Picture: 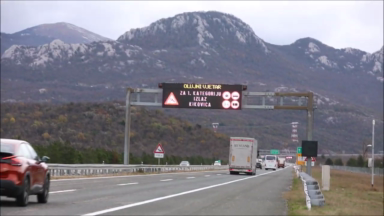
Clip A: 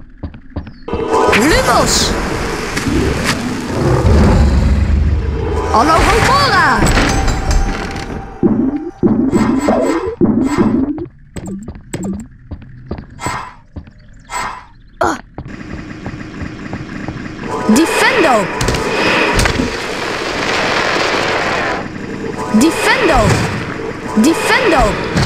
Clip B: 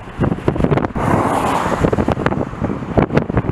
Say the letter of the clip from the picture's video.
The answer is B